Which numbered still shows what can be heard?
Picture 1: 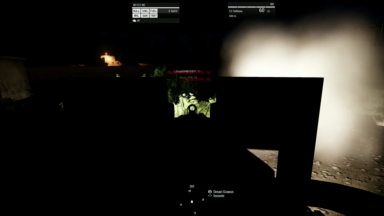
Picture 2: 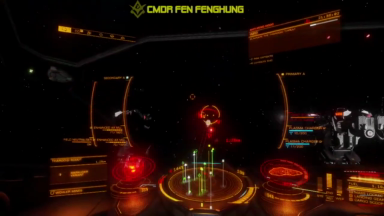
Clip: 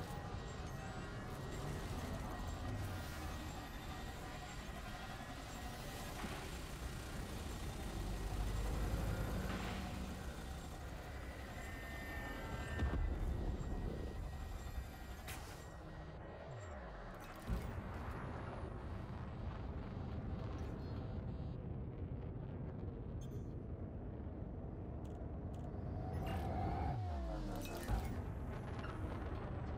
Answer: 2